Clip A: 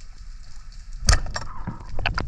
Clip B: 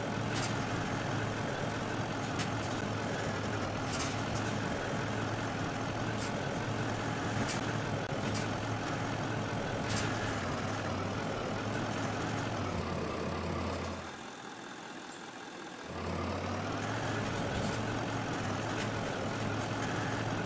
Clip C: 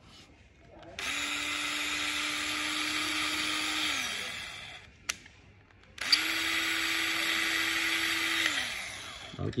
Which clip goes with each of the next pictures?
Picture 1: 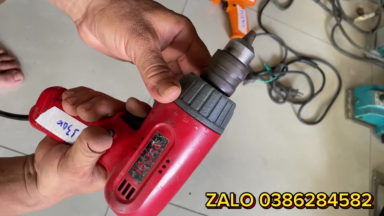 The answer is C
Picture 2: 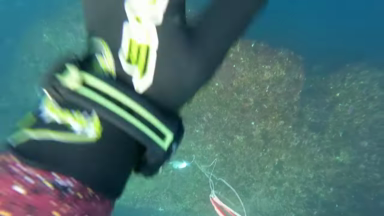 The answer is A